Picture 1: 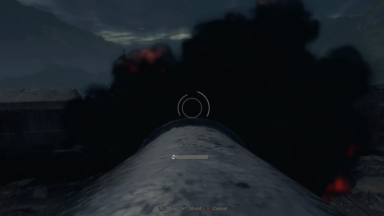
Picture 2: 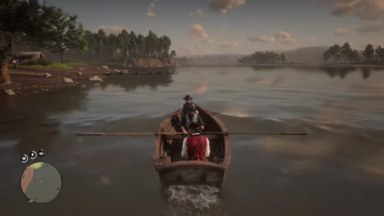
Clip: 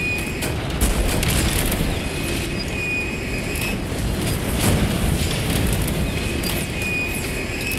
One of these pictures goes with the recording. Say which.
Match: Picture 1